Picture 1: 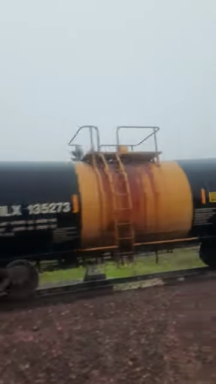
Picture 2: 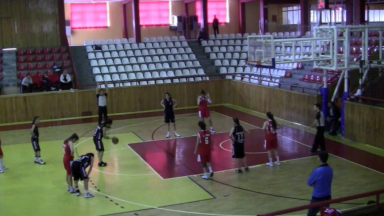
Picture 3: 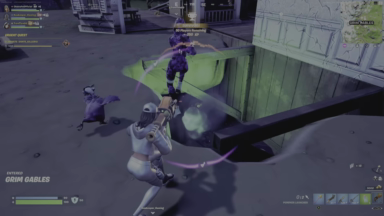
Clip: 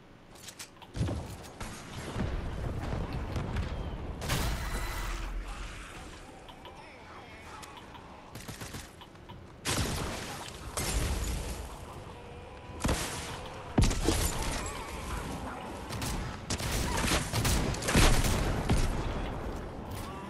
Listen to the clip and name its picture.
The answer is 3